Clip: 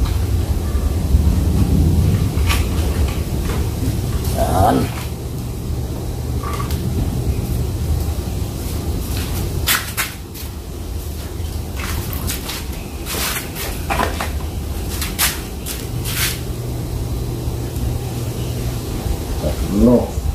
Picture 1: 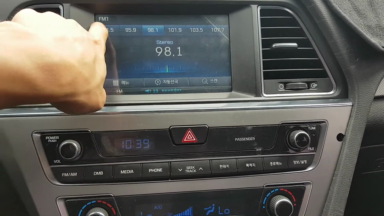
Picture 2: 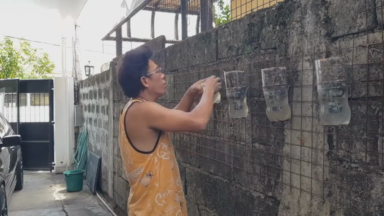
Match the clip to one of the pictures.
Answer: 2